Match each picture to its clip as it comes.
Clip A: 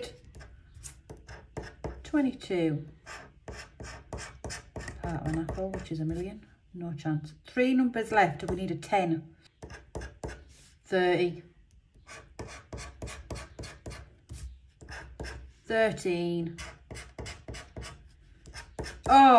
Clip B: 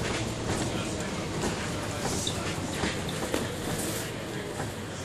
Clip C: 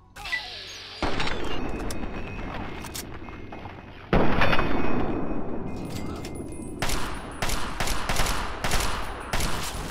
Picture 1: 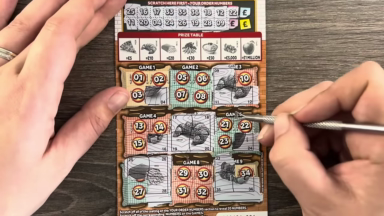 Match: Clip A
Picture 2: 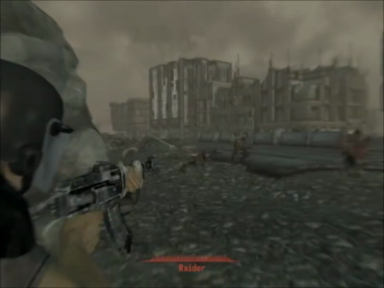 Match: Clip C